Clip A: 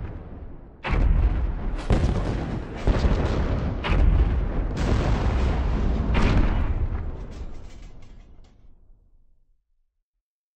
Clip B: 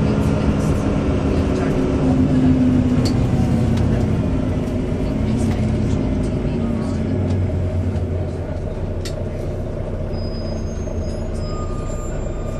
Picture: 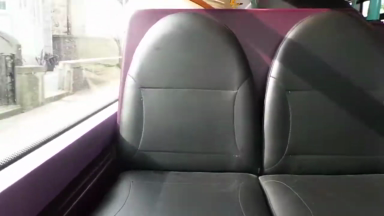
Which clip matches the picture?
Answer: B